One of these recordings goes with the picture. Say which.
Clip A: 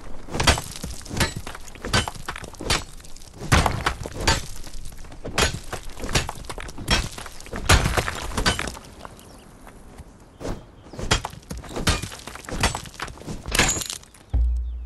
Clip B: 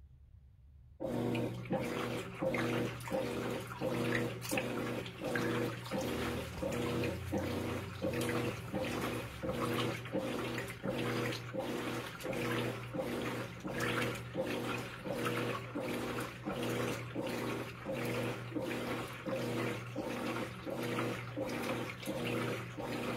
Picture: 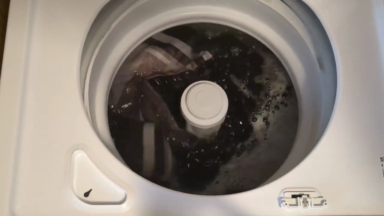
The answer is B